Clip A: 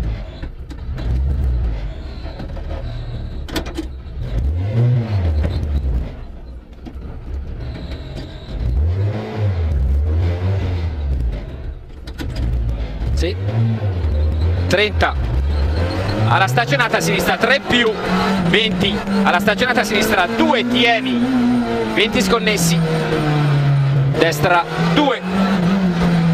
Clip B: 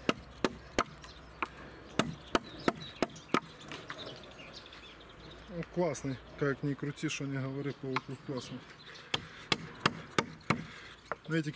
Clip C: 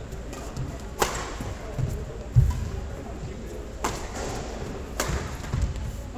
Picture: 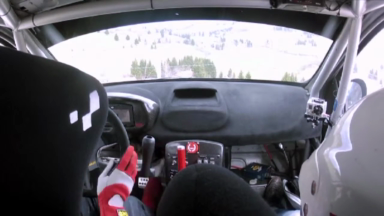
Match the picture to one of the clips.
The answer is A